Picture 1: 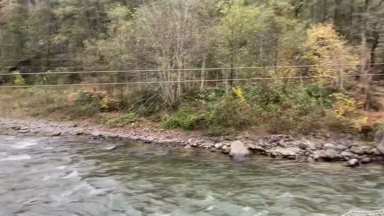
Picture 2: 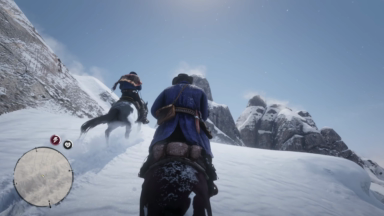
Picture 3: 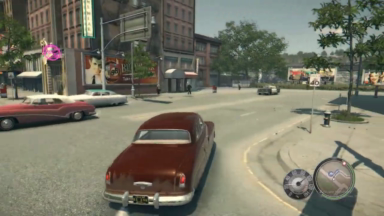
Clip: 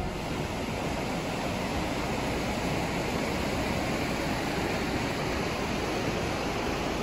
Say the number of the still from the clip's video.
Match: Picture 1